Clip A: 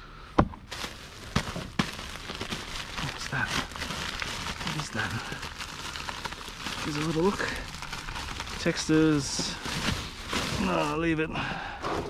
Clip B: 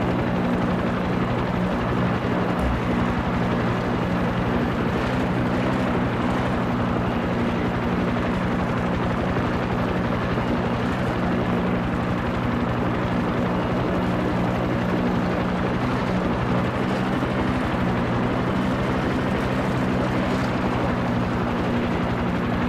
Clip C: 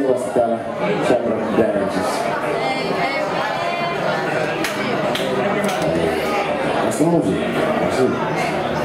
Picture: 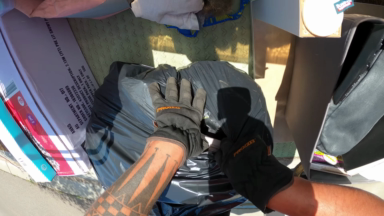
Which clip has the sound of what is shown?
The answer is A